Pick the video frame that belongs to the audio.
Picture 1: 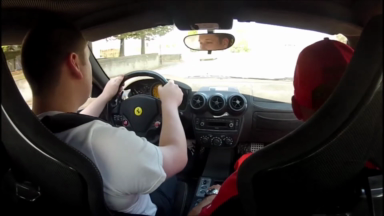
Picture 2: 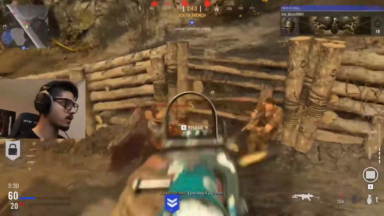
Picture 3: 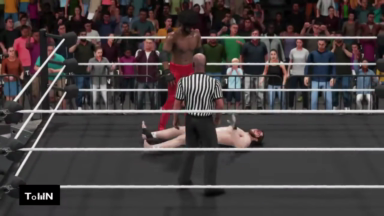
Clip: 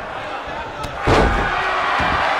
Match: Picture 3